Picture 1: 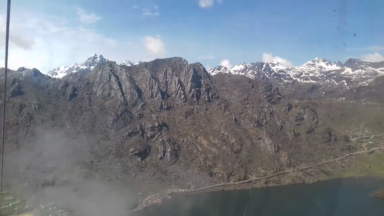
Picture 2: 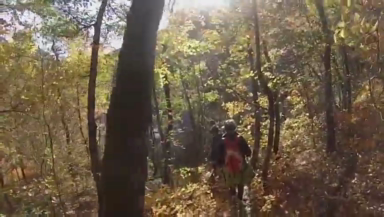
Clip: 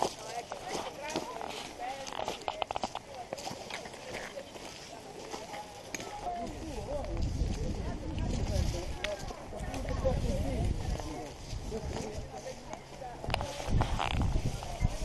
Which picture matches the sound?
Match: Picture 2